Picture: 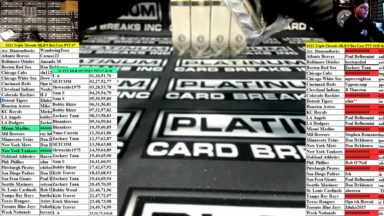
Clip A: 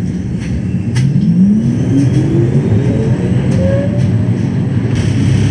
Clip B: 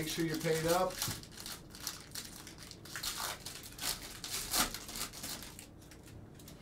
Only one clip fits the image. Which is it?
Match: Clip B